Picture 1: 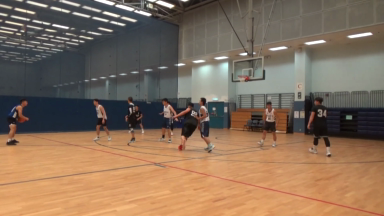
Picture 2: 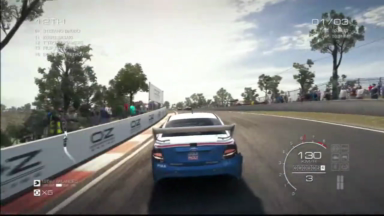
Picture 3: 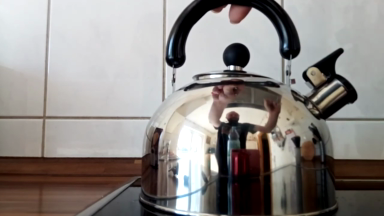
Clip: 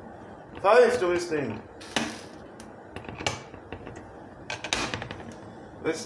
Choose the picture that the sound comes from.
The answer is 3